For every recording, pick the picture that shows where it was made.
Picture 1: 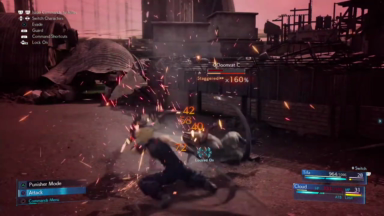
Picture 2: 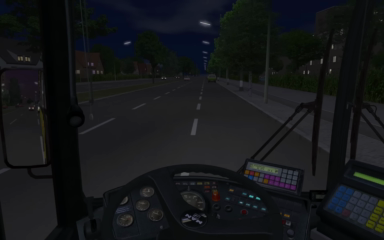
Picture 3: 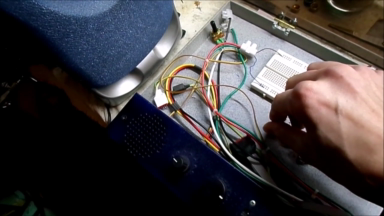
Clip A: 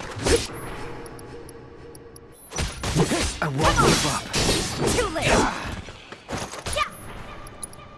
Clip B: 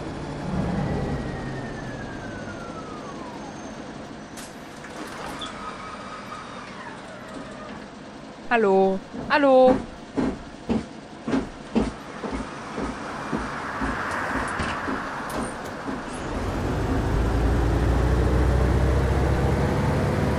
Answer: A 1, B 2